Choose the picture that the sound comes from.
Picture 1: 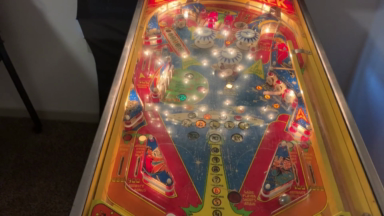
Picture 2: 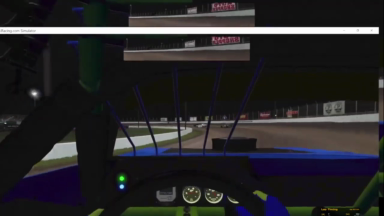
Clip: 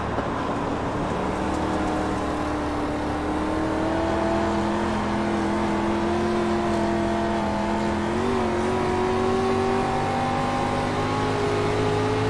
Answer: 2